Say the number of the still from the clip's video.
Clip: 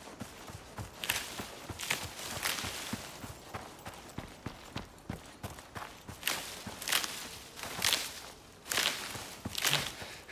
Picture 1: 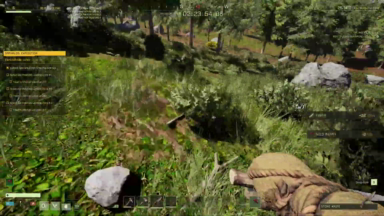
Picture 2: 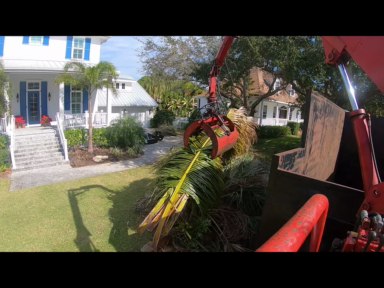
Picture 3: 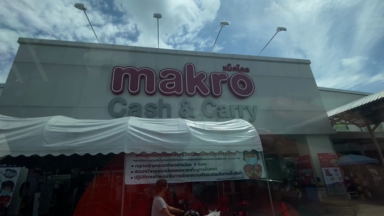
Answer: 1